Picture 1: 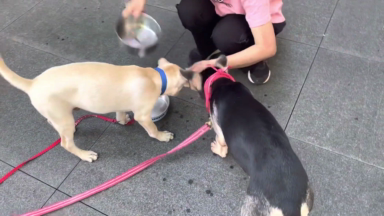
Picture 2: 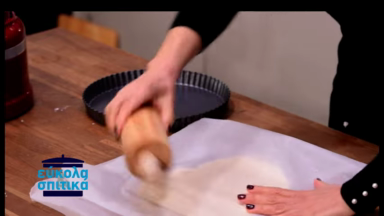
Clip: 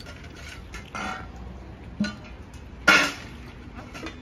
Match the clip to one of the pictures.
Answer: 1